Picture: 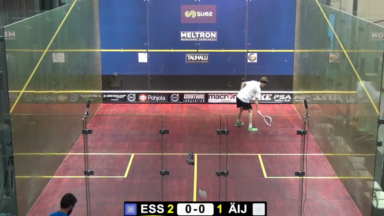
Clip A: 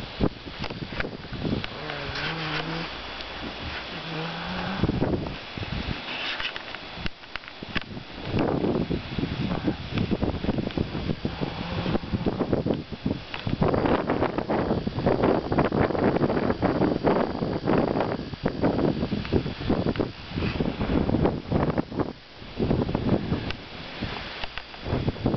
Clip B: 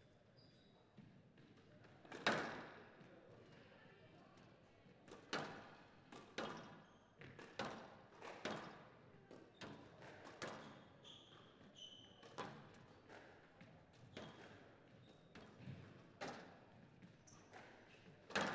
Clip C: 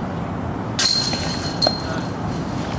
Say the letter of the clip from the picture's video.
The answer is B